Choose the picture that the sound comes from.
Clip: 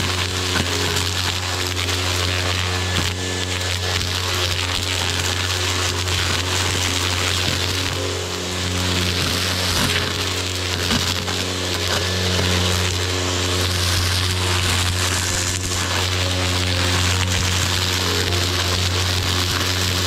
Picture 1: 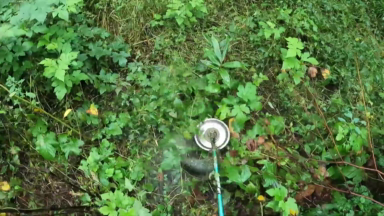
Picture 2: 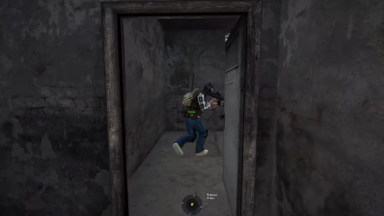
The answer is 1